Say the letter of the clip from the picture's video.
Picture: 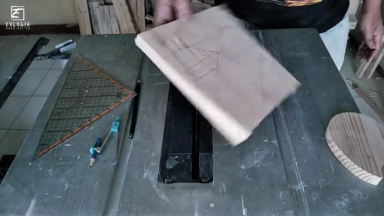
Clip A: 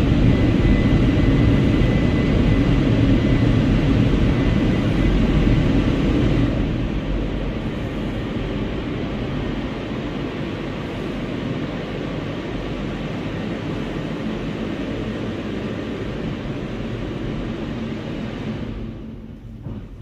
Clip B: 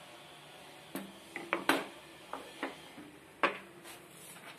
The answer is B